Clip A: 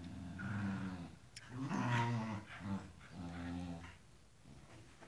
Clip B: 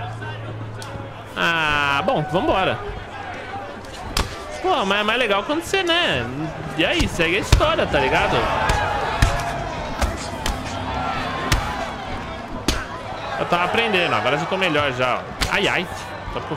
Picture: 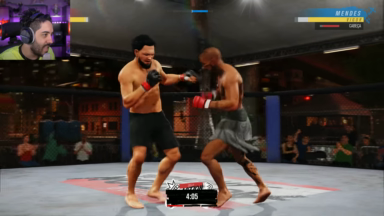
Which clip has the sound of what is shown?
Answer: B